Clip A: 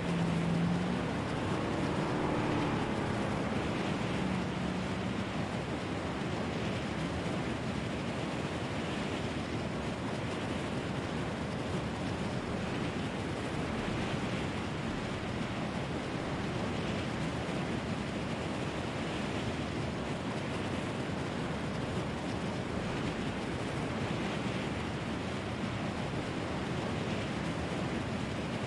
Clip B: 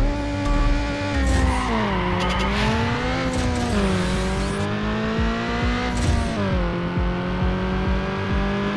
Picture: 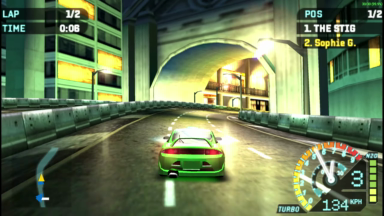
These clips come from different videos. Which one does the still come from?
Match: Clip B